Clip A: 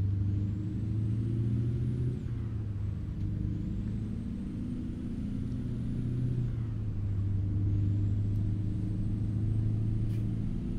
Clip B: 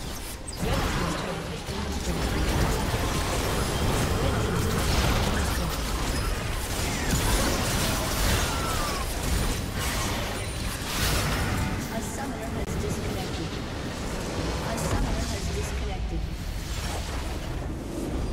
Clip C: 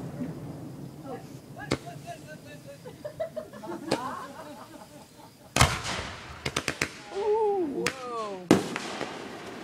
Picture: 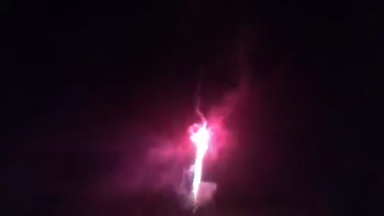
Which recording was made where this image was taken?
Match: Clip C